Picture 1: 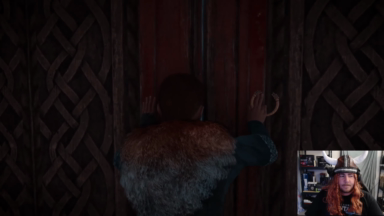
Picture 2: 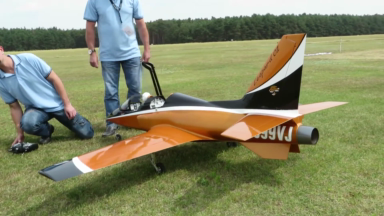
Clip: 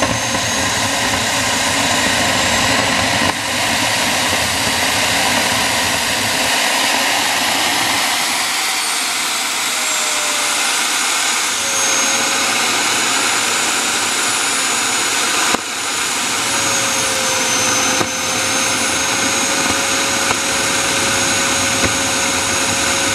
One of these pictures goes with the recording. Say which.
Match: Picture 2